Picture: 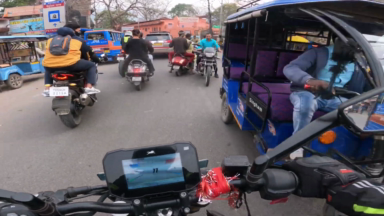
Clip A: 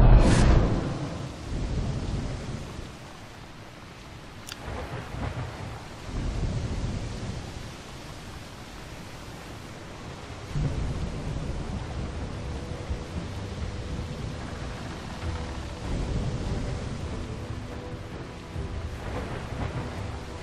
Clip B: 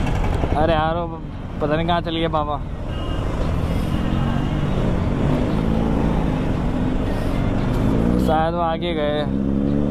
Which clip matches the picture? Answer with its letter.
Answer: B